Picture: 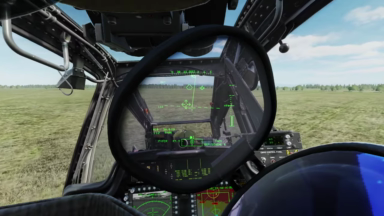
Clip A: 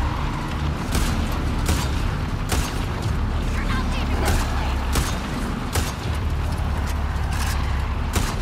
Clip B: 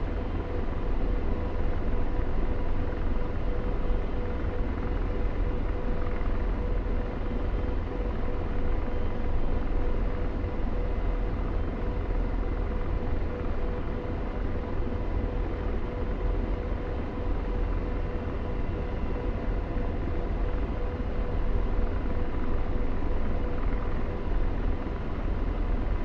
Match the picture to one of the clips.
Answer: B